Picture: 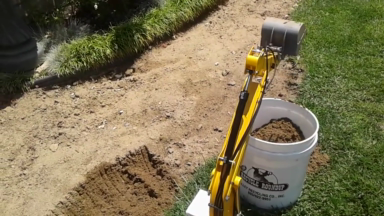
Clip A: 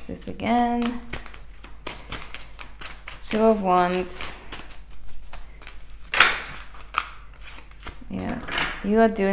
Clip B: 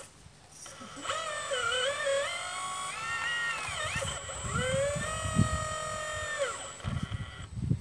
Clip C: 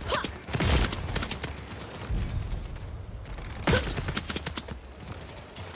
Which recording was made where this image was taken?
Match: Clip B